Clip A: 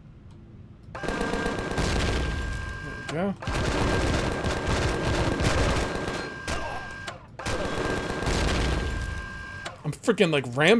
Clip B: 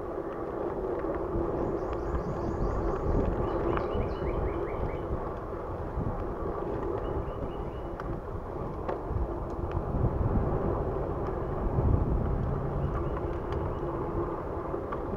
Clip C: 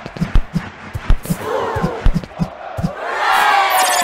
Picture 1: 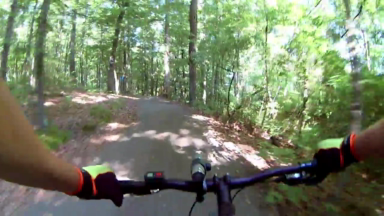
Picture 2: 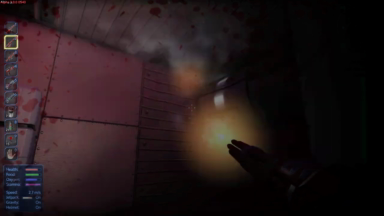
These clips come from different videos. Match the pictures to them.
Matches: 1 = B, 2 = A